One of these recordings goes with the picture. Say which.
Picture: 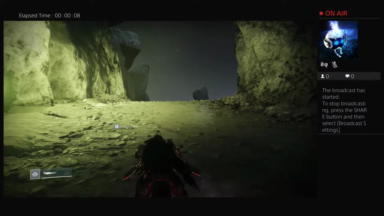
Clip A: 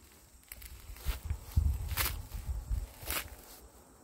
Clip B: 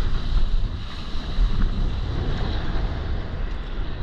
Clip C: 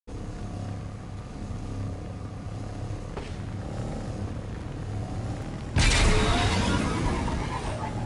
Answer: C